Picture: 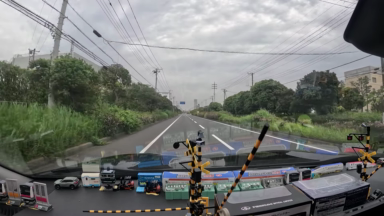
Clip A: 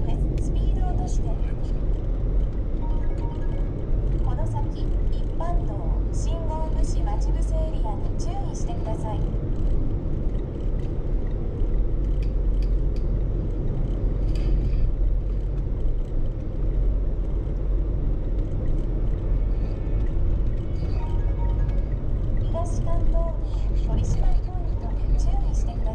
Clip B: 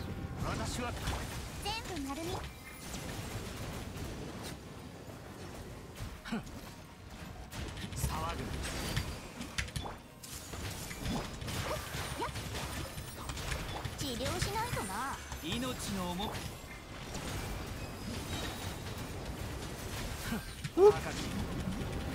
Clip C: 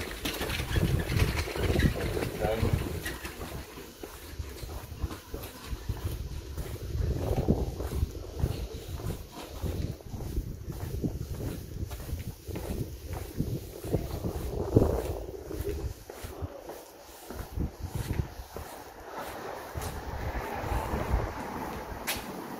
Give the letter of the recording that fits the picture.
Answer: A